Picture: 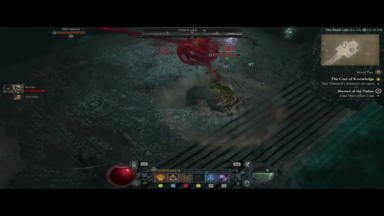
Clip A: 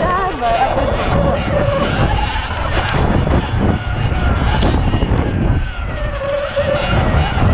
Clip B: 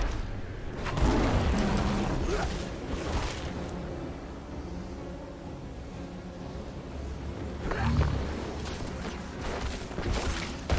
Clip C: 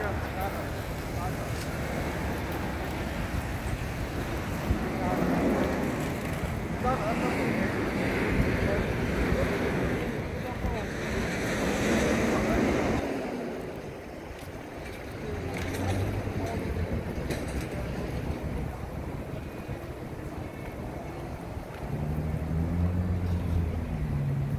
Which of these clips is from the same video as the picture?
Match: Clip B